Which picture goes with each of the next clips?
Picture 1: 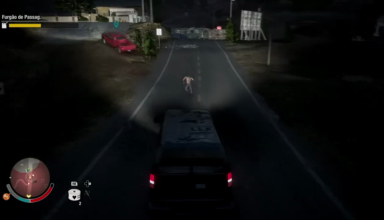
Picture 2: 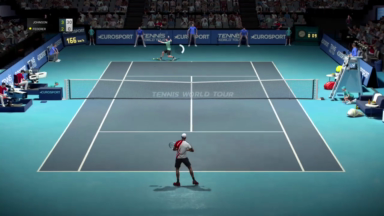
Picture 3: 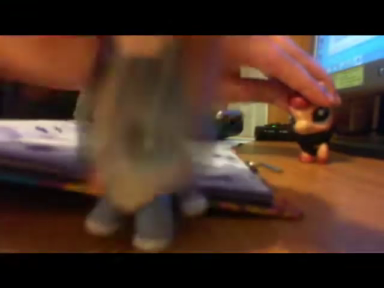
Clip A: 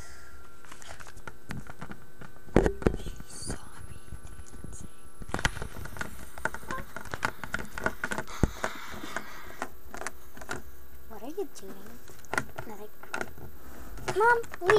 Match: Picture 3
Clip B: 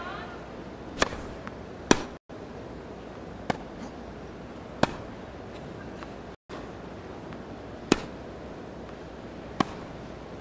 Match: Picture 2